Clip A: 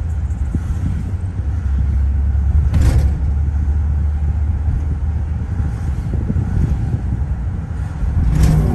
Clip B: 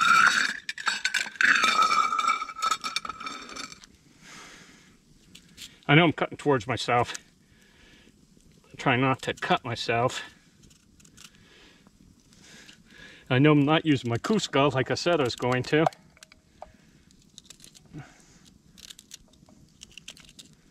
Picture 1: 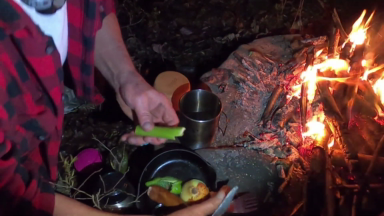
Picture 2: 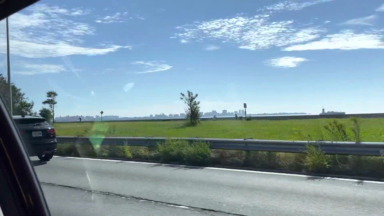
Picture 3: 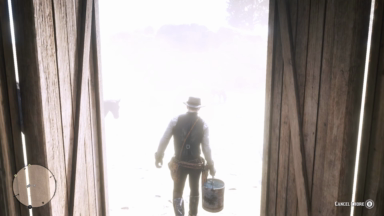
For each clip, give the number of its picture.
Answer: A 2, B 1